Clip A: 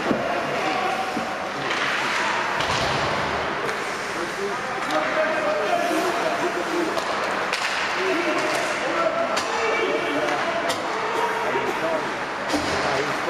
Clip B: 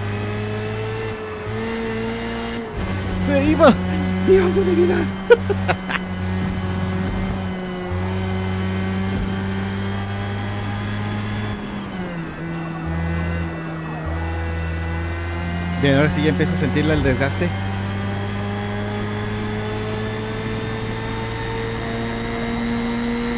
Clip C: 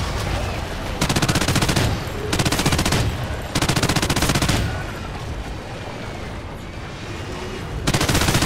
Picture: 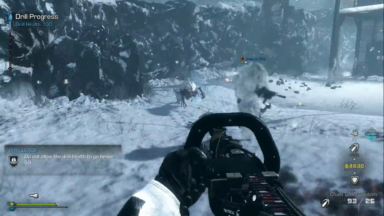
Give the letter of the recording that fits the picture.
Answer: C